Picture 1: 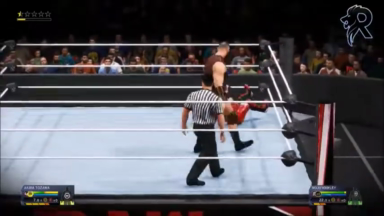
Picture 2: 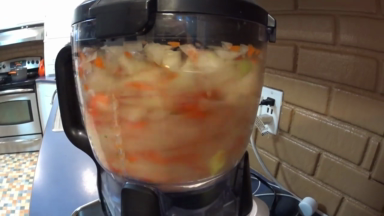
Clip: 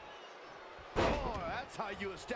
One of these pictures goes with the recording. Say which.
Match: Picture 1